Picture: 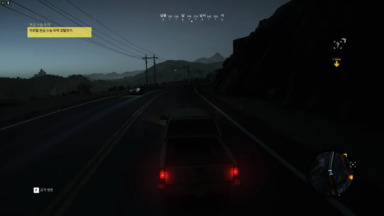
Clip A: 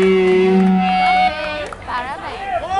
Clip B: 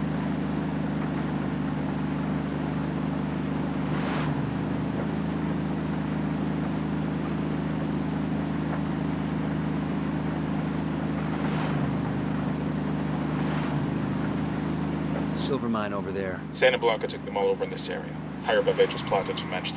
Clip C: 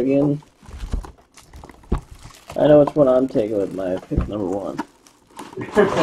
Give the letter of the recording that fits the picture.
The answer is B